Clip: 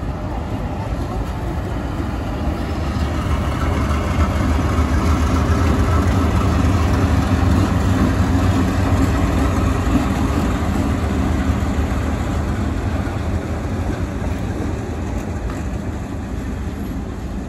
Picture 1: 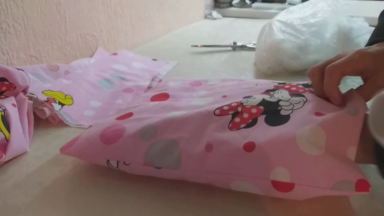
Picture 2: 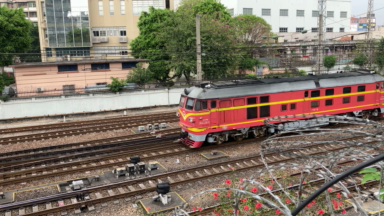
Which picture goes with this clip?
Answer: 2